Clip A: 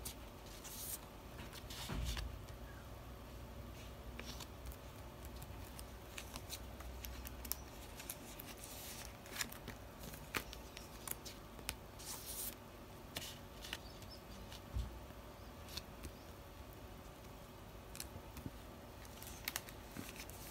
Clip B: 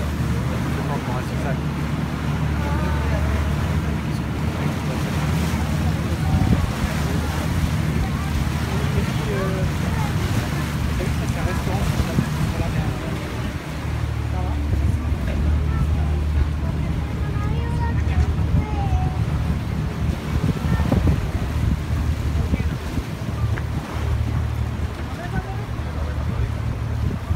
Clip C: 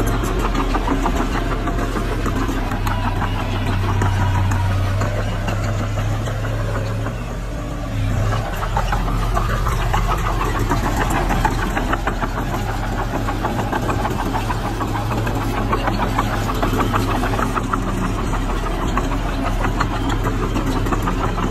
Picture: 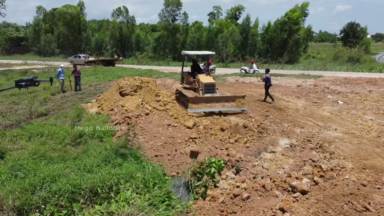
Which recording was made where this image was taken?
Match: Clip C